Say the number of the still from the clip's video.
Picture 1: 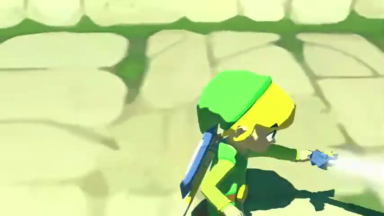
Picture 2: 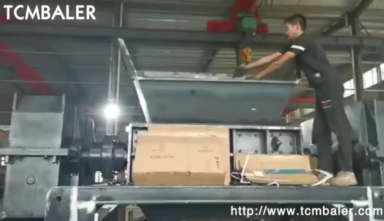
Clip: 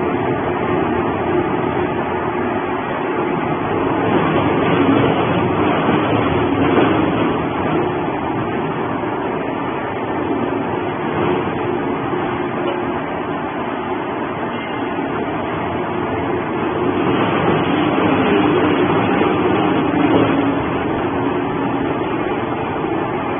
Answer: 2